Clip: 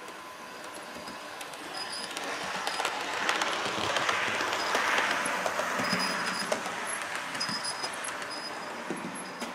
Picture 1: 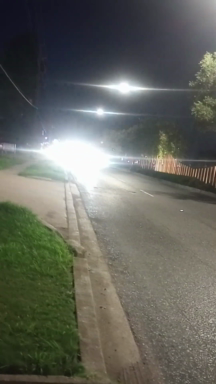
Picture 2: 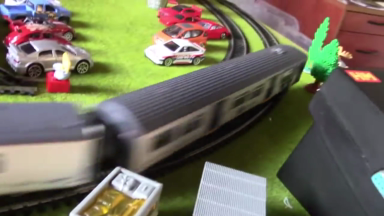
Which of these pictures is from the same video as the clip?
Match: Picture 2